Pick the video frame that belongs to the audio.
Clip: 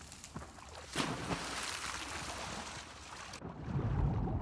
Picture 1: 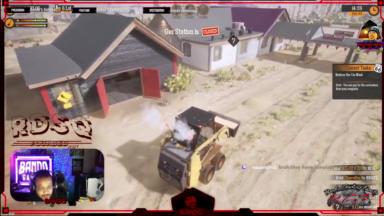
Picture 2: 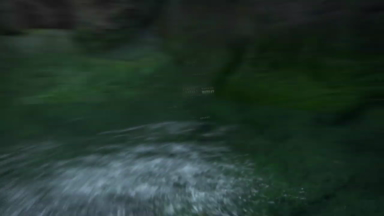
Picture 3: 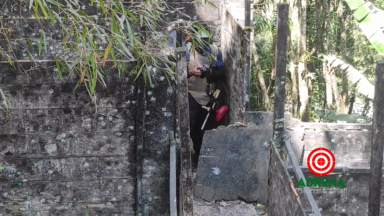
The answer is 2